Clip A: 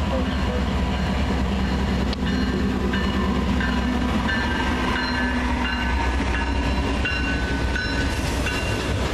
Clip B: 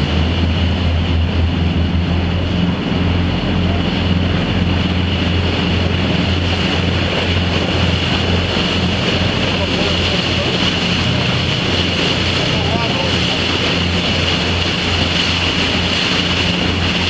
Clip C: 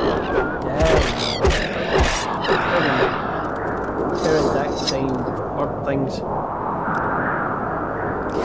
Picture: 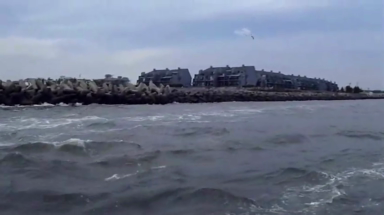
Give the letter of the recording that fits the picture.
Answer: B